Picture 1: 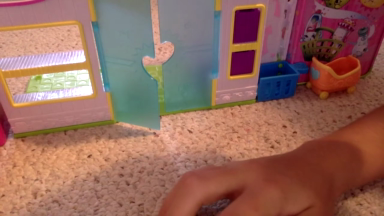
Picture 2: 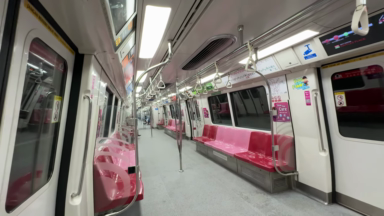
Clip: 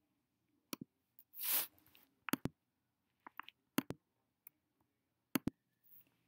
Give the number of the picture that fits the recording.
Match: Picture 1